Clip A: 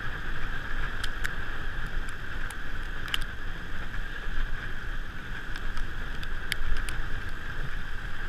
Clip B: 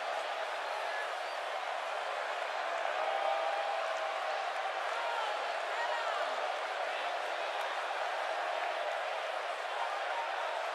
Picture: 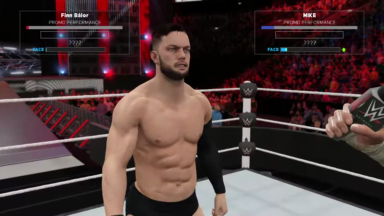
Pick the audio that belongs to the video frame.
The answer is B